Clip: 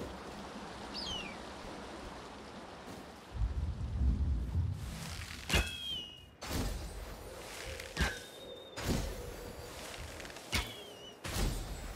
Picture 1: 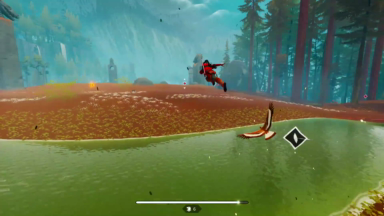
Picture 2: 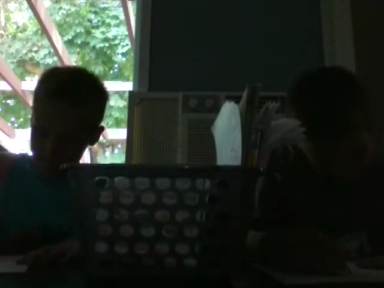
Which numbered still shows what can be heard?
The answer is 1